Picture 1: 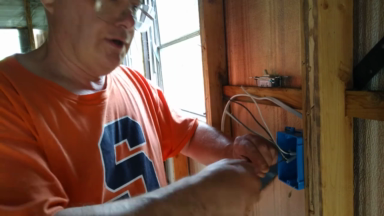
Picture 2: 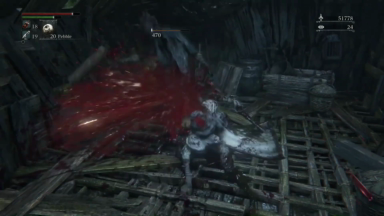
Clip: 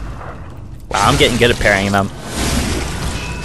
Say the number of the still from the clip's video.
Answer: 2